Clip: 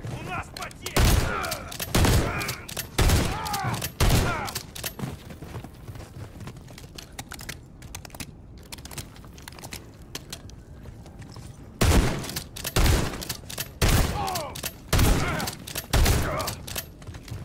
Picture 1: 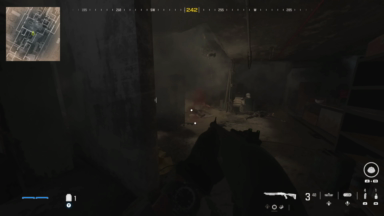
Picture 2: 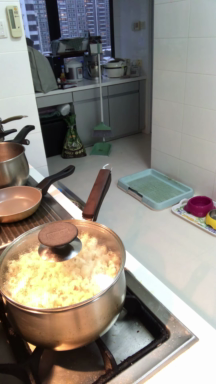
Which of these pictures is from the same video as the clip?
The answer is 1